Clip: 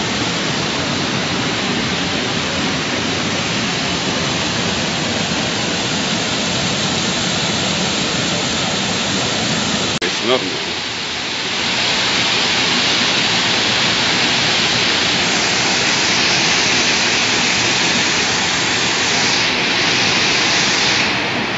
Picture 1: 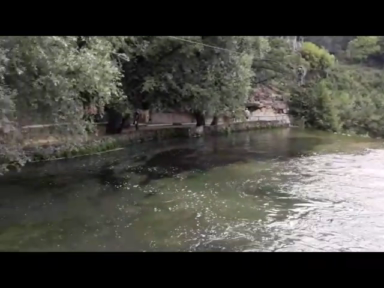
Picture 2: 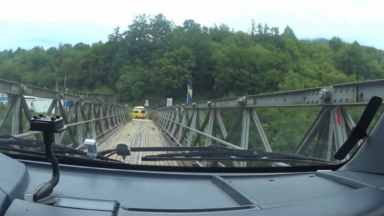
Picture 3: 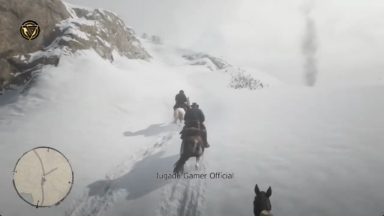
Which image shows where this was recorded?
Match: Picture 1